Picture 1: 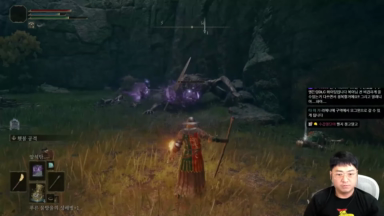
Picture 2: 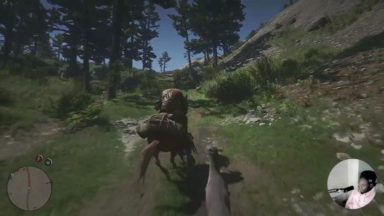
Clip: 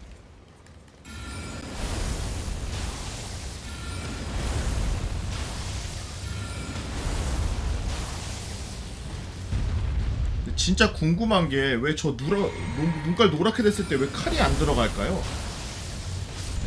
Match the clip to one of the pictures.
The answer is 1